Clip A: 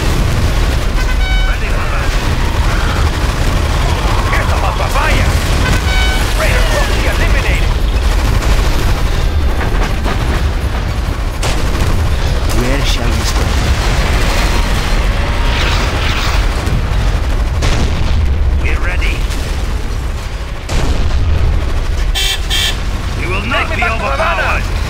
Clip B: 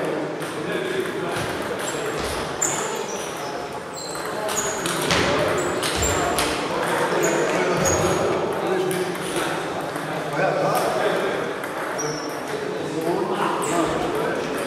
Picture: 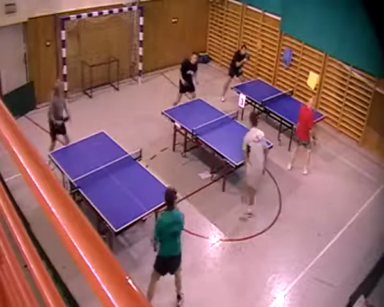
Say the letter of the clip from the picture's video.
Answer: B